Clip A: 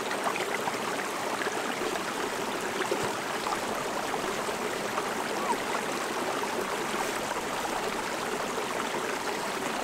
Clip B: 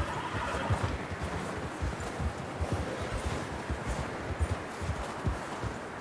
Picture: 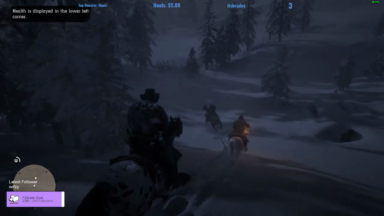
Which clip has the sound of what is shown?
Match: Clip B